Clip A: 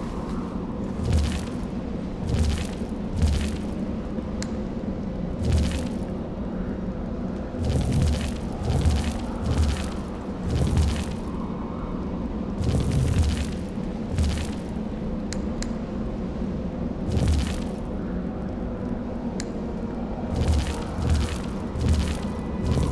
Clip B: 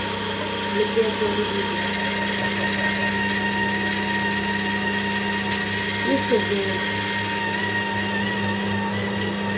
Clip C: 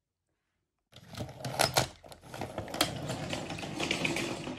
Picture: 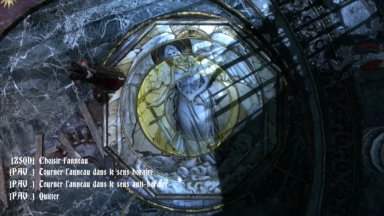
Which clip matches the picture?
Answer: A